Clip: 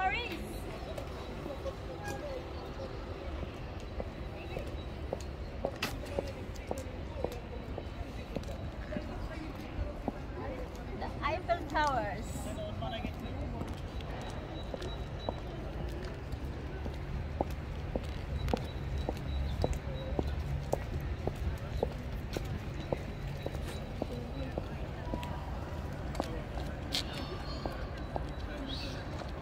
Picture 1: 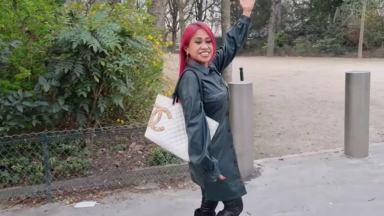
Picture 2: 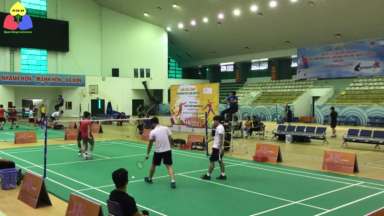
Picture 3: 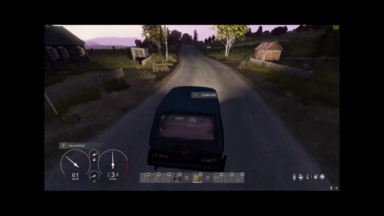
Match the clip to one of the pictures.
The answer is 1